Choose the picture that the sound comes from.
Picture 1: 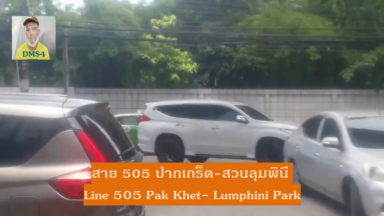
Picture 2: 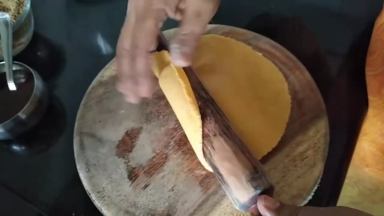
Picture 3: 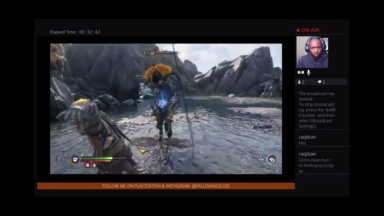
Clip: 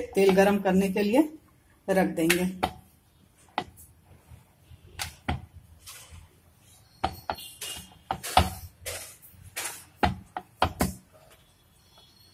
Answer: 2